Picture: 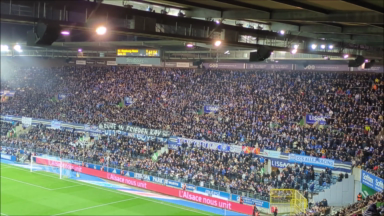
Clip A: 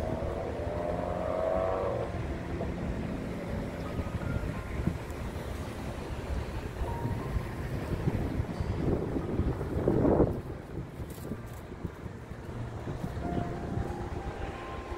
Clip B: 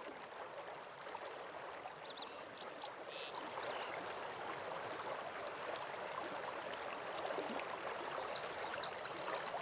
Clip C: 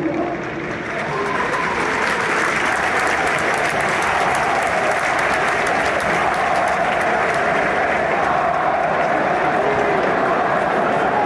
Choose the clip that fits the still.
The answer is C